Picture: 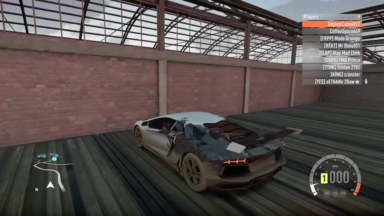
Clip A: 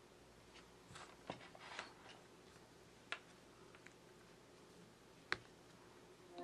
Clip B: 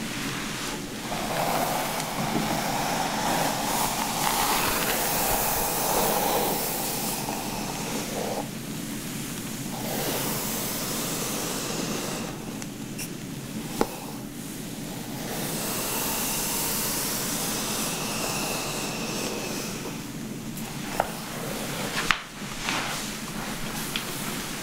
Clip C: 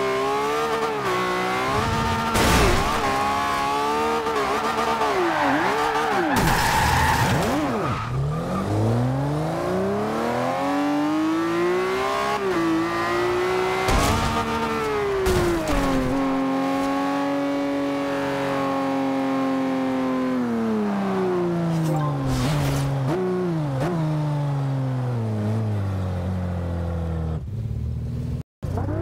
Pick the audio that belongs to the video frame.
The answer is C